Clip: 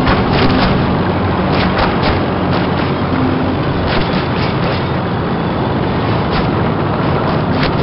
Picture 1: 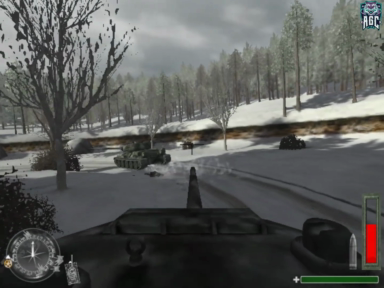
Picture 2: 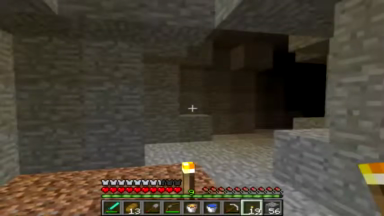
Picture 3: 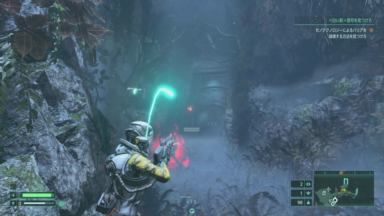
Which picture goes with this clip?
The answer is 1